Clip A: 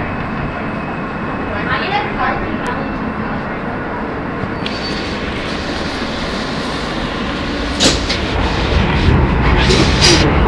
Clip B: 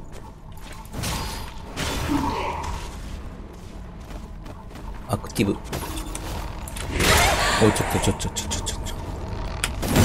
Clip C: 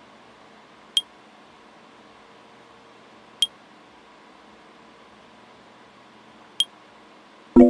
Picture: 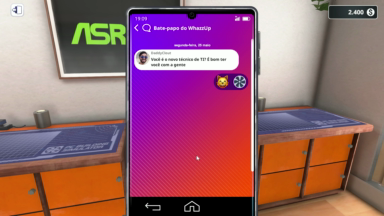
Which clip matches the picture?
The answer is C